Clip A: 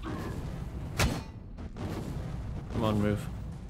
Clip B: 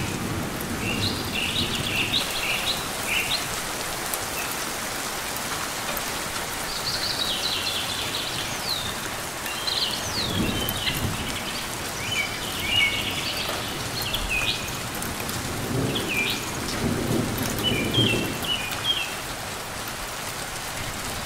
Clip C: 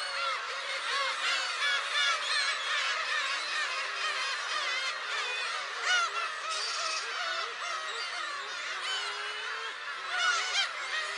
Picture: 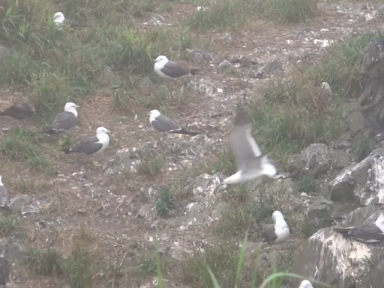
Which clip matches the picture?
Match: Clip C